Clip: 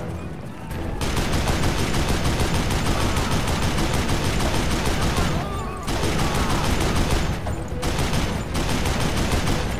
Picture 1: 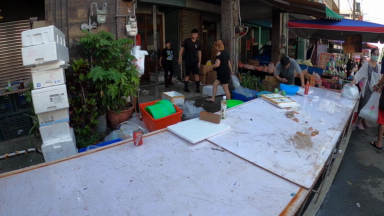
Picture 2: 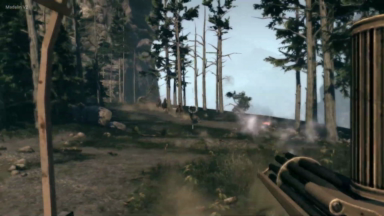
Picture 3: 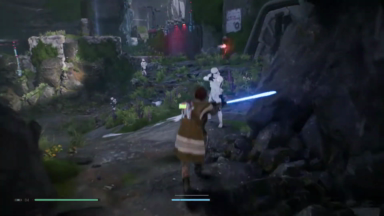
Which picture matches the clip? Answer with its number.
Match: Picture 2